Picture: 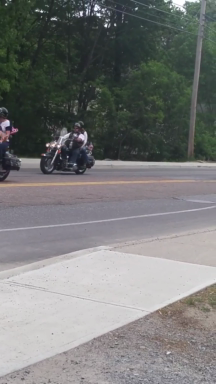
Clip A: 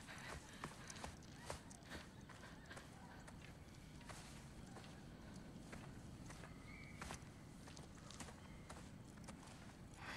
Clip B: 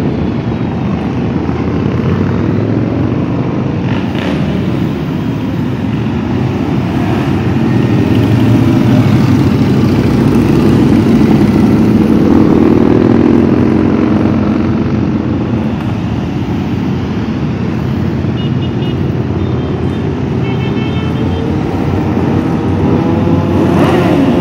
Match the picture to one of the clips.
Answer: B